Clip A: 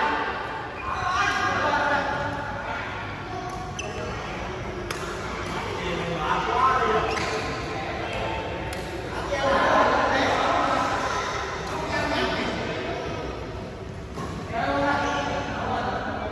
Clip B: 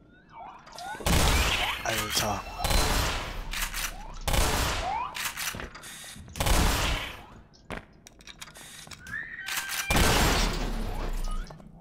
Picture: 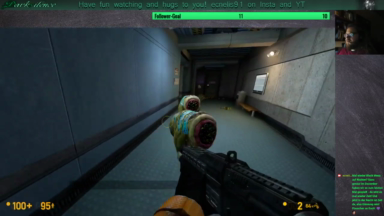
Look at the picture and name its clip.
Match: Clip B